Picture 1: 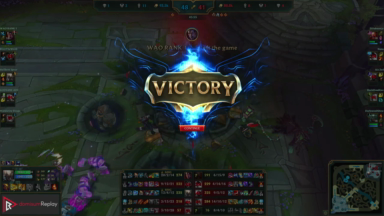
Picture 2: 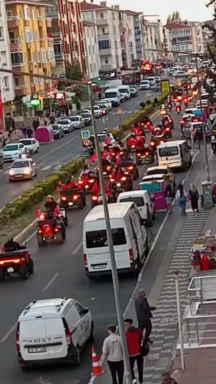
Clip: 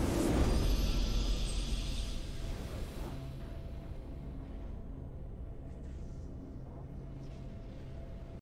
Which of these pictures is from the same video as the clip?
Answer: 1